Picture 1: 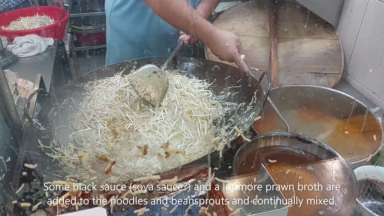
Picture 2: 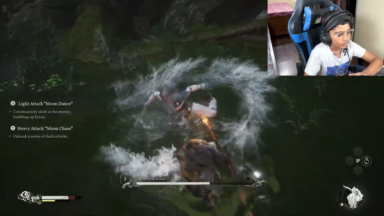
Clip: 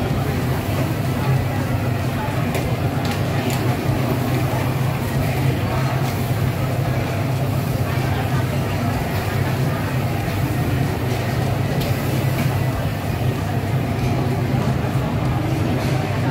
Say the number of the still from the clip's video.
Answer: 1